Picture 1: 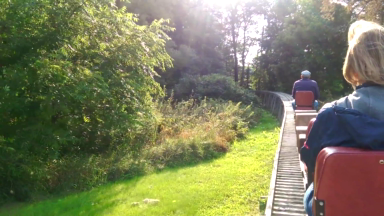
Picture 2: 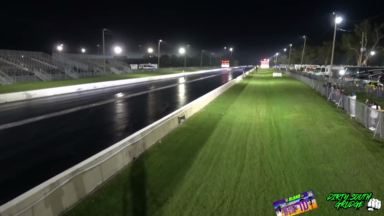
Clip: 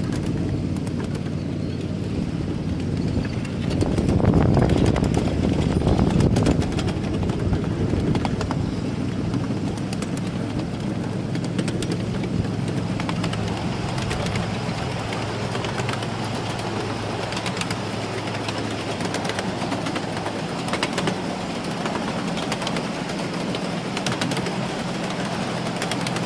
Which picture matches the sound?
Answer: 1